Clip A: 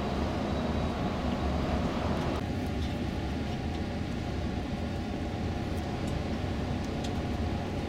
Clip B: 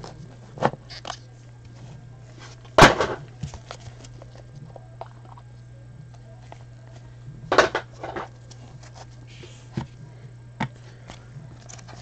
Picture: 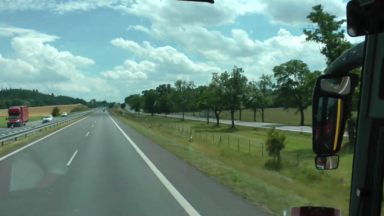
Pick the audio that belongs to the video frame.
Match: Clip A